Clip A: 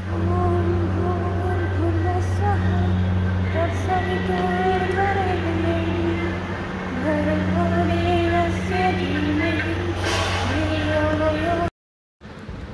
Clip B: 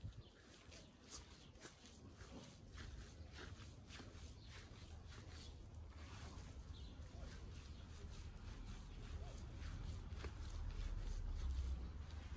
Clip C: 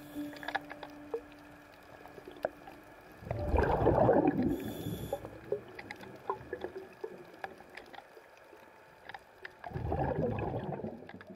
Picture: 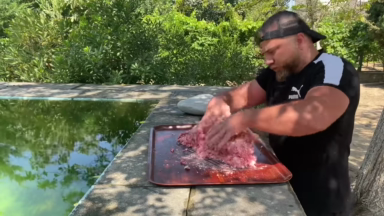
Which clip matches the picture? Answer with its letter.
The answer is B